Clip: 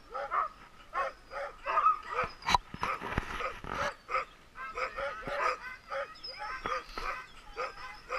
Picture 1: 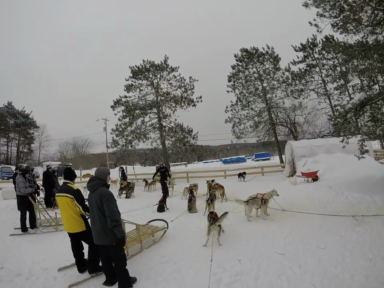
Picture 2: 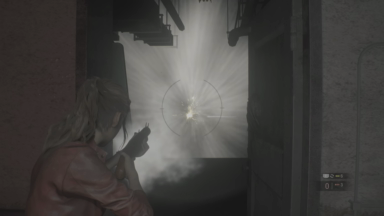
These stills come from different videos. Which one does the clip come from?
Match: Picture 1